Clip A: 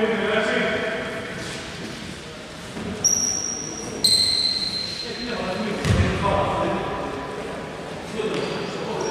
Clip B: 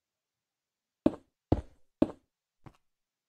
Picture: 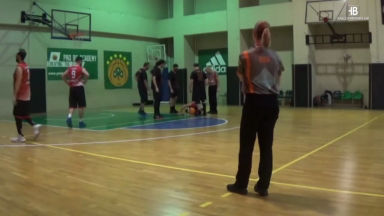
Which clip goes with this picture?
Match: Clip A